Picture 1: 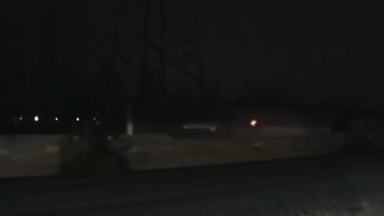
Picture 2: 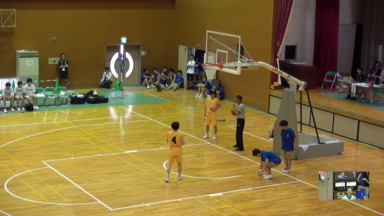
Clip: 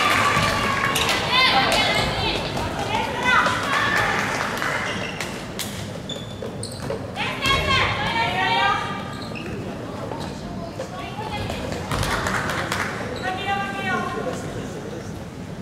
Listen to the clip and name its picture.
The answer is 2